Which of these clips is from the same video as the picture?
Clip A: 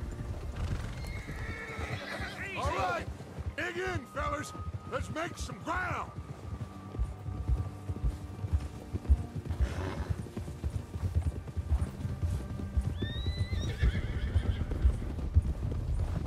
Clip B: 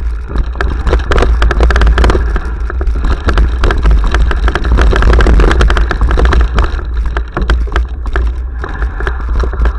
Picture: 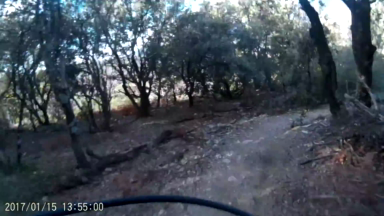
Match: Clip B